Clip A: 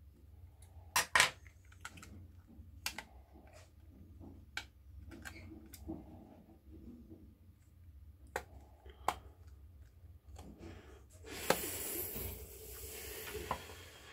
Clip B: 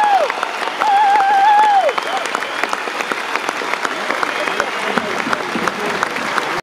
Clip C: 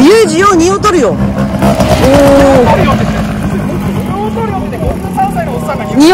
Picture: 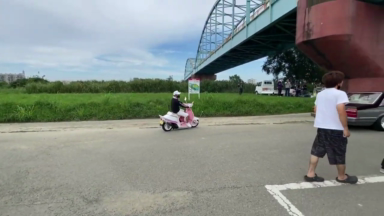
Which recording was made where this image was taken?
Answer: C